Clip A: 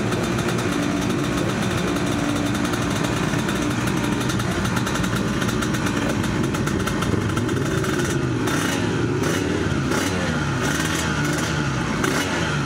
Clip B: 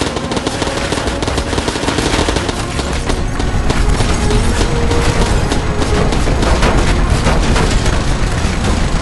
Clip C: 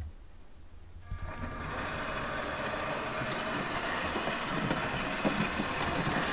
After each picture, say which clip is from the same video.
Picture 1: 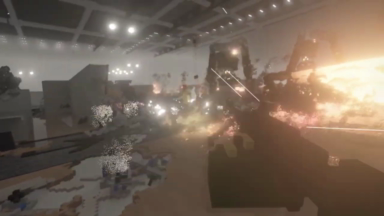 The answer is B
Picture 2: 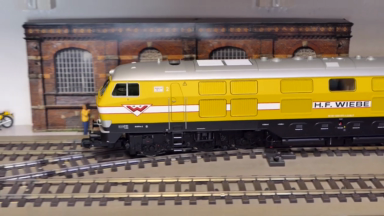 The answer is C